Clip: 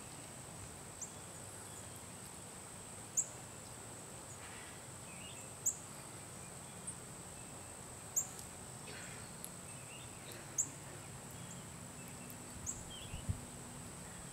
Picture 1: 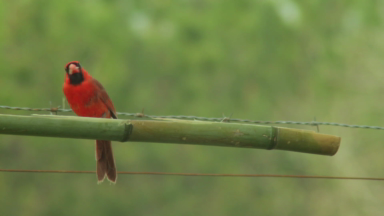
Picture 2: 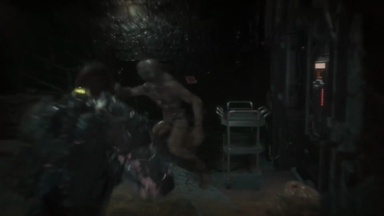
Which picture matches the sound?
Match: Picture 1